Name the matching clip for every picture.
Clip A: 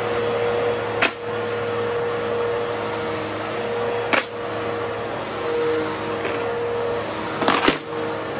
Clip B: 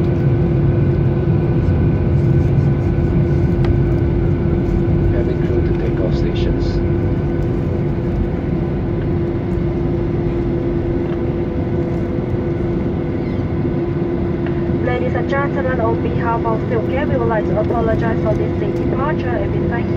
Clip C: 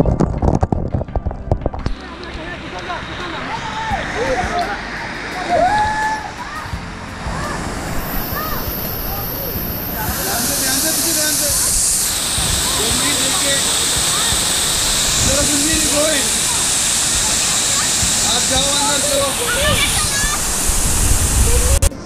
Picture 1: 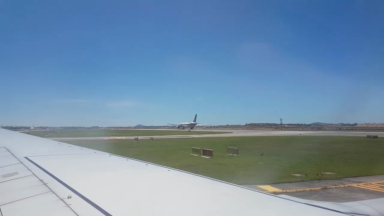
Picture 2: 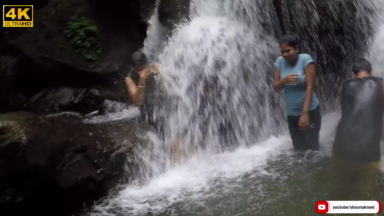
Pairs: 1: B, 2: C